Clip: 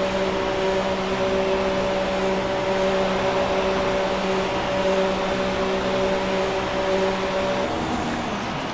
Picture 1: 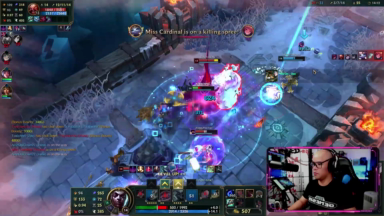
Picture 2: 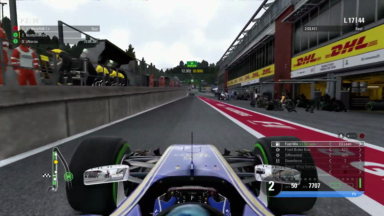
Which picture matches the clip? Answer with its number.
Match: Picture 2